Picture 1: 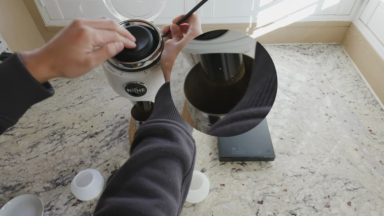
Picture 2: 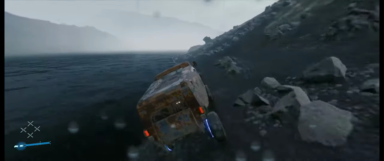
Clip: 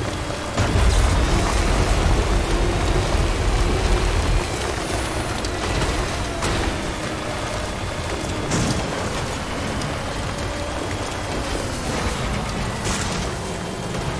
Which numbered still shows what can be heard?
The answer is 2